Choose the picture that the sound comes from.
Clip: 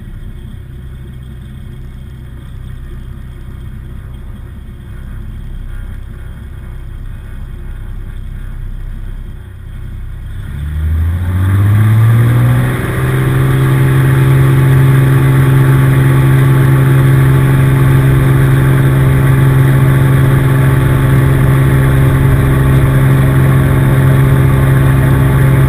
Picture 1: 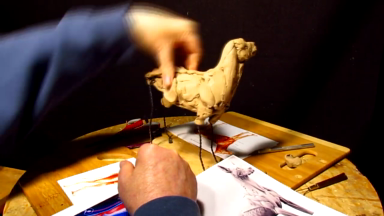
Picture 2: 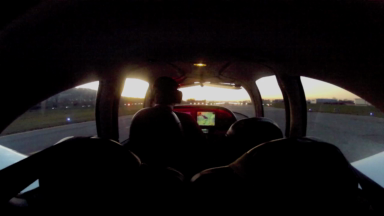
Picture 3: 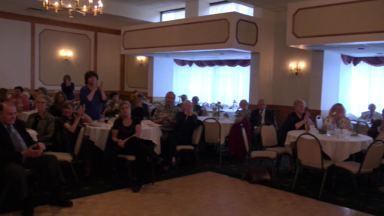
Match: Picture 2